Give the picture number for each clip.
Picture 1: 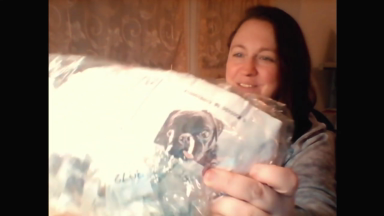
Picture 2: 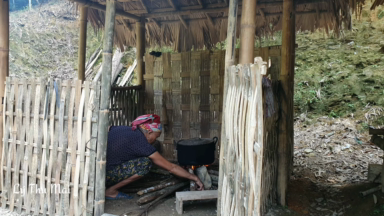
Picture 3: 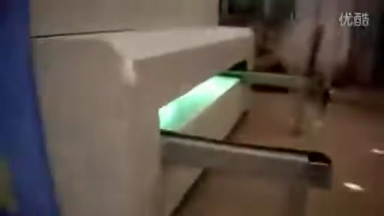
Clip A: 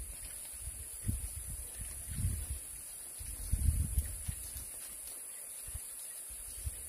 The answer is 2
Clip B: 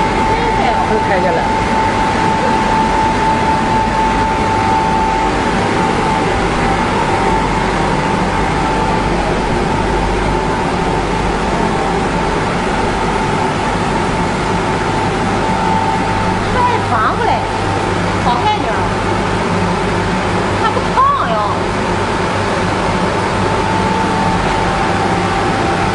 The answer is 3